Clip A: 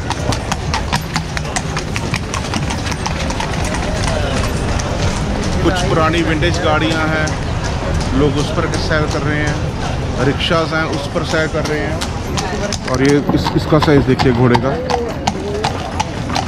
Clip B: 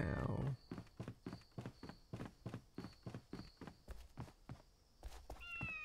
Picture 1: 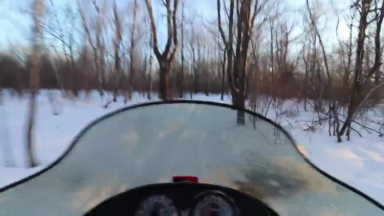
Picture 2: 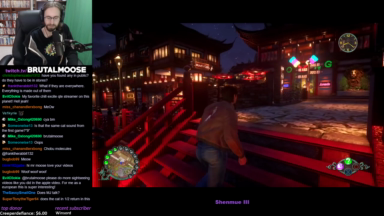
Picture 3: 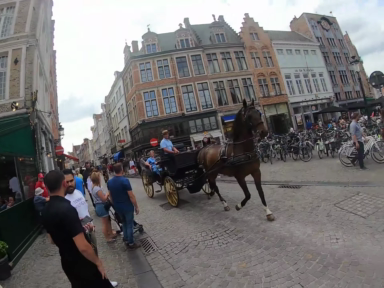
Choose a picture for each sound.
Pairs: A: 3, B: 2